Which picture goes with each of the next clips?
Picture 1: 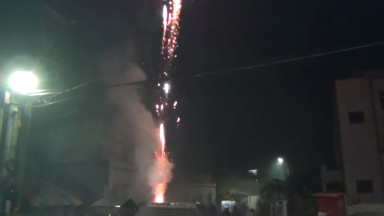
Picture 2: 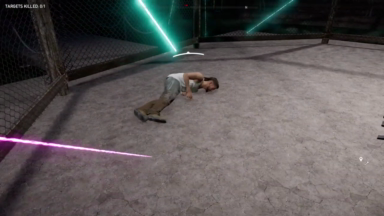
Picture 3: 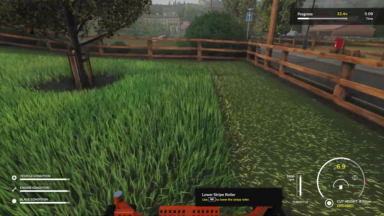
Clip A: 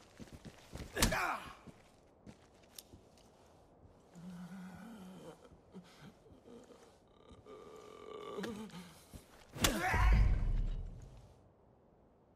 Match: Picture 2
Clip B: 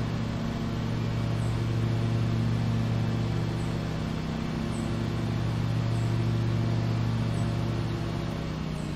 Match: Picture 3